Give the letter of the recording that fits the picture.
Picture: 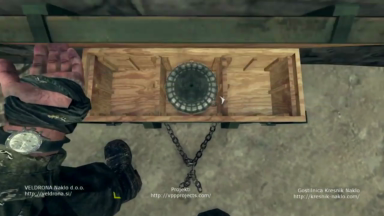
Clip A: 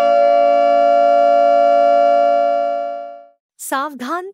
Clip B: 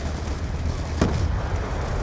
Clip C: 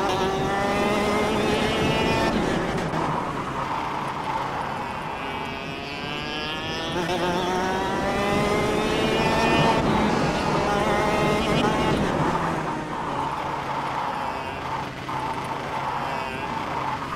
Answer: B